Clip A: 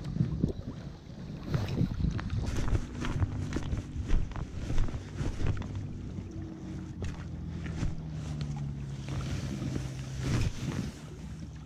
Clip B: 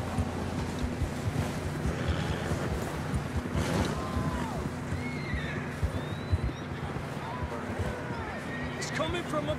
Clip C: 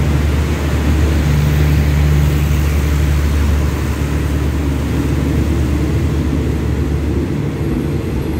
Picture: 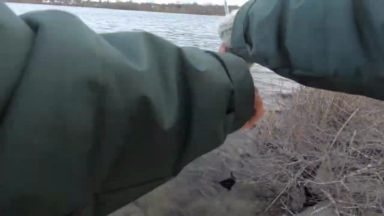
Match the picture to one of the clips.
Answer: A